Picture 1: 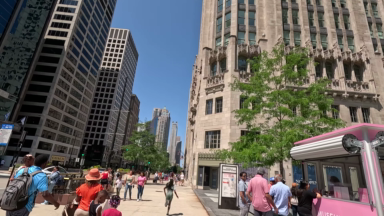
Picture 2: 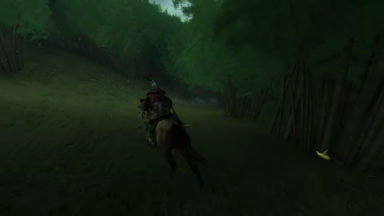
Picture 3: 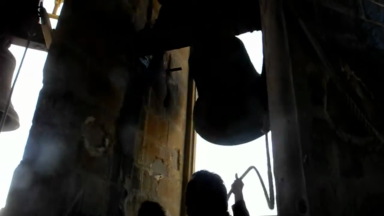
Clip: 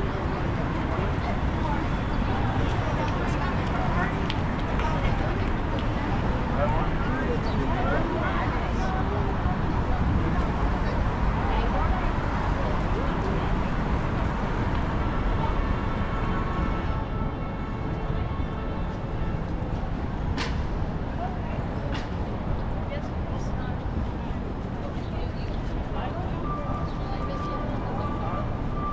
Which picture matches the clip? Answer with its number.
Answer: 1